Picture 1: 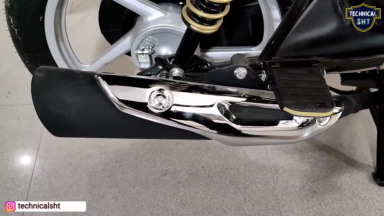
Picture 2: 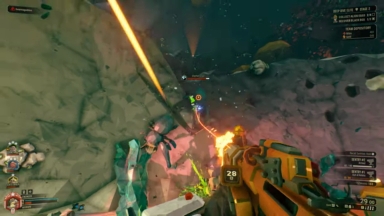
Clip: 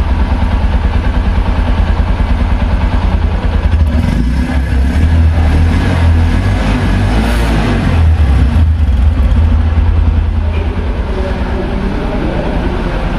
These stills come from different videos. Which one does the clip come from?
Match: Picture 1